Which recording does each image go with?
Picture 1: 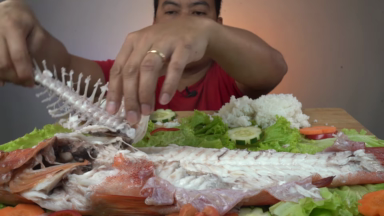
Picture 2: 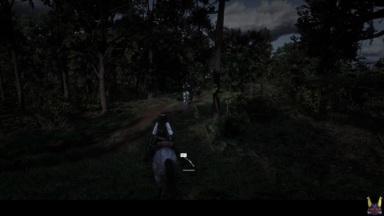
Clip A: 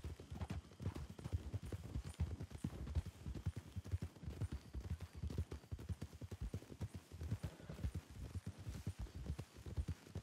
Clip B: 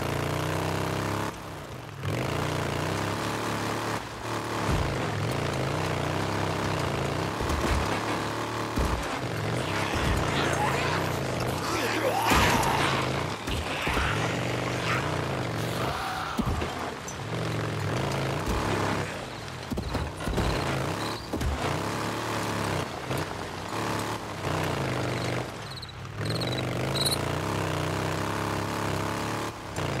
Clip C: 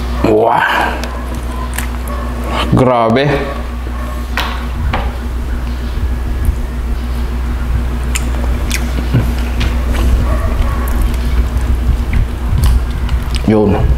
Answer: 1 C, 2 A